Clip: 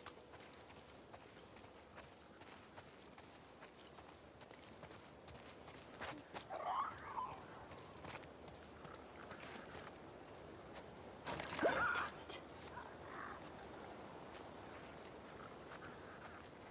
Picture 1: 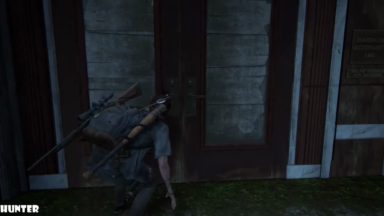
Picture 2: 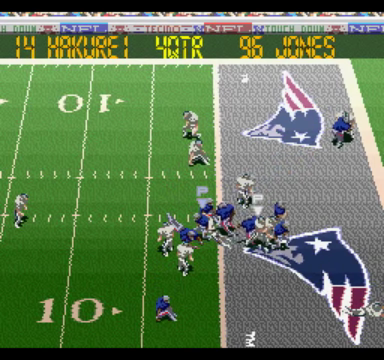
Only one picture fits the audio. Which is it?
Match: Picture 1